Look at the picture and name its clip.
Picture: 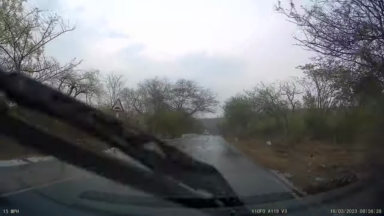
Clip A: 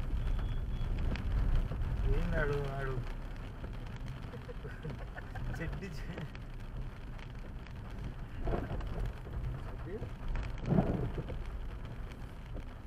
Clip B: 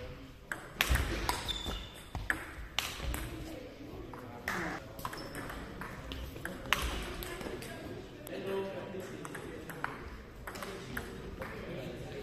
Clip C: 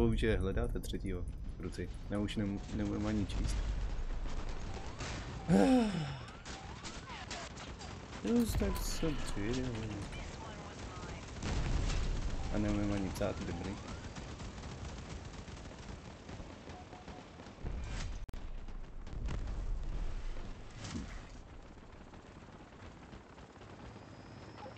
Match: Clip A